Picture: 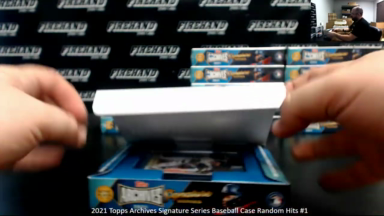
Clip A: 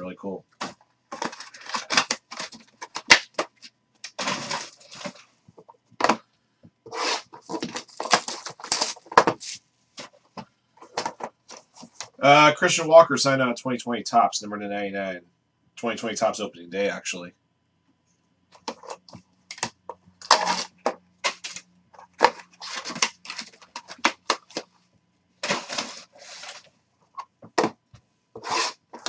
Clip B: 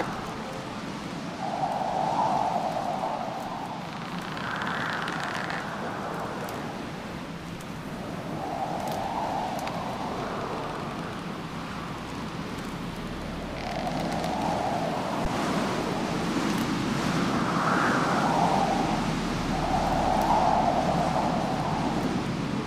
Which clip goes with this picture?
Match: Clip A